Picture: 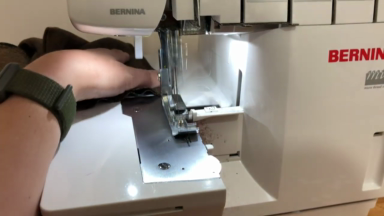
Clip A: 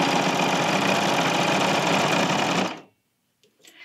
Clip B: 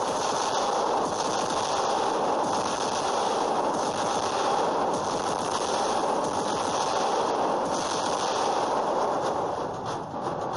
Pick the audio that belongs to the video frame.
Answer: A